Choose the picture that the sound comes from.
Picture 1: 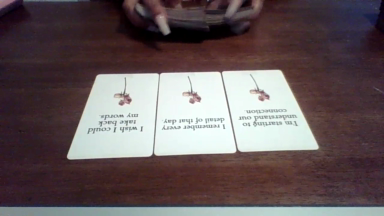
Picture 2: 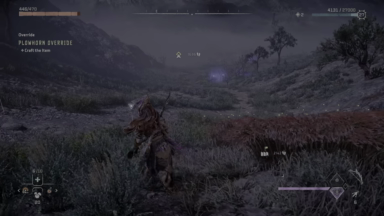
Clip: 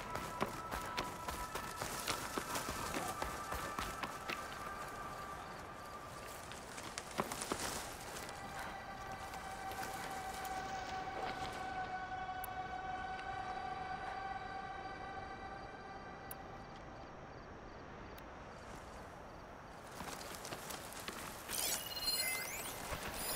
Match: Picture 2